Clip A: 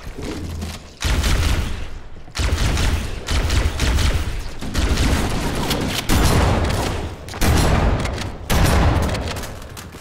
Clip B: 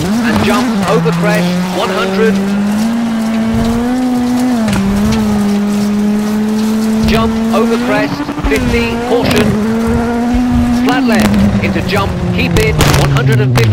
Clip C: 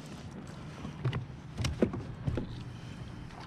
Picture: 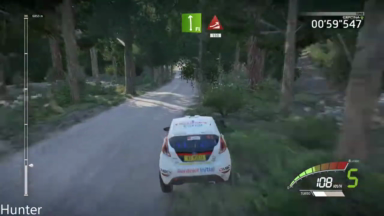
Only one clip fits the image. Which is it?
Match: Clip B